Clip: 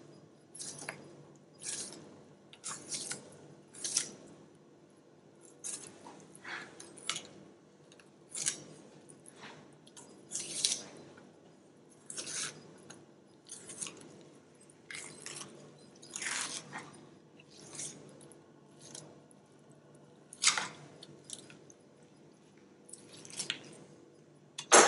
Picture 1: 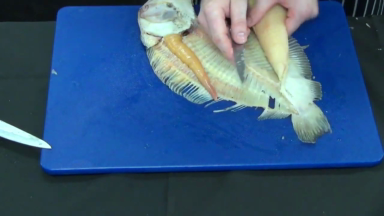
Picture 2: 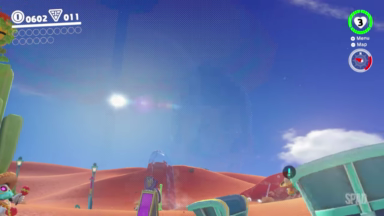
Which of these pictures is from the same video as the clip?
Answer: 1